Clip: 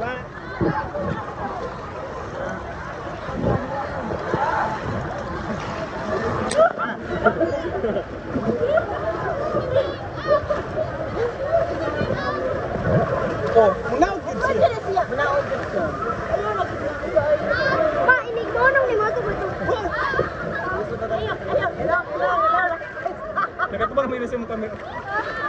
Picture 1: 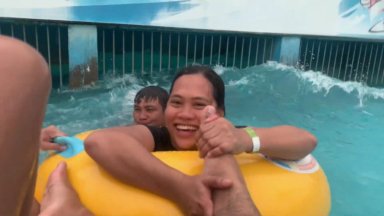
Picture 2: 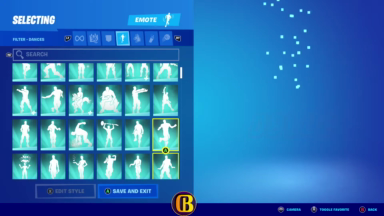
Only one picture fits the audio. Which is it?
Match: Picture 1